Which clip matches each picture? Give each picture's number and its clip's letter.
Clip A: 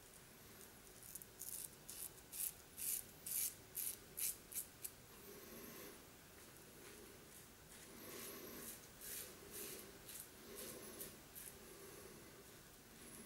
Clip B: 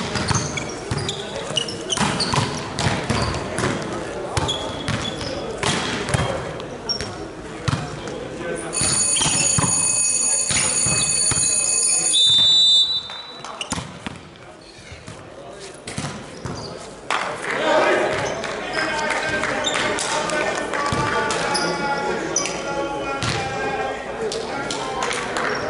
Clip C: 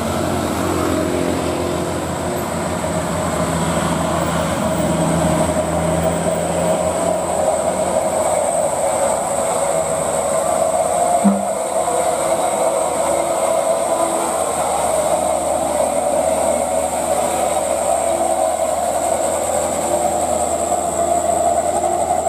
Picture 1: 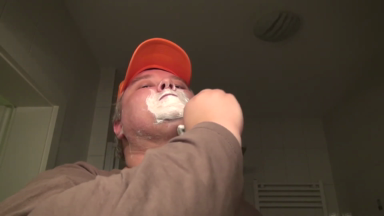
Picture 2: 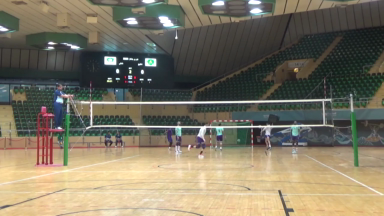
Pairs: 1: A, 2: B